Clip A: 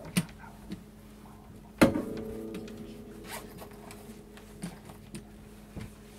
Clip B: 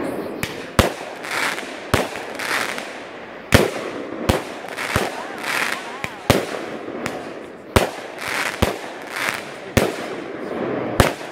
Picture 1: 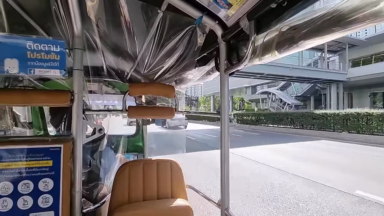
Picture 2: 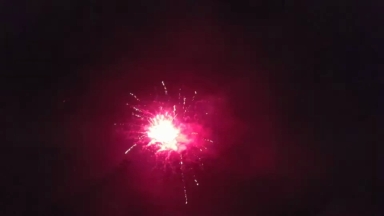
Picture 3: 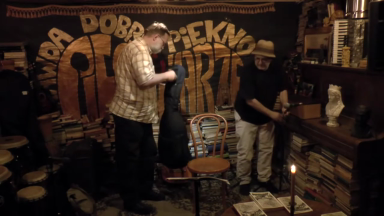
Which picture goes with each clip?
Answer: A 3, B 2